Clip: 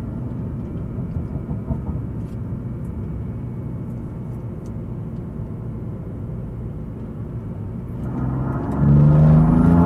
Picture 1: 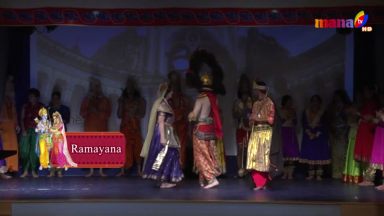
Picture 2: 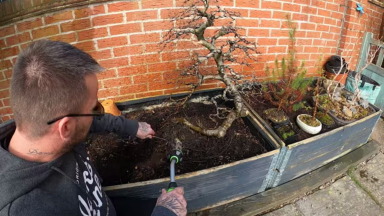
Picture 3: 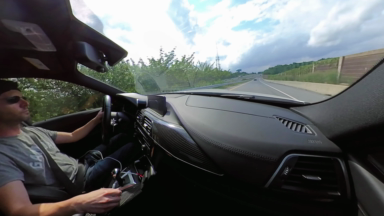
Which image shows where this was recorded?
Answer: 3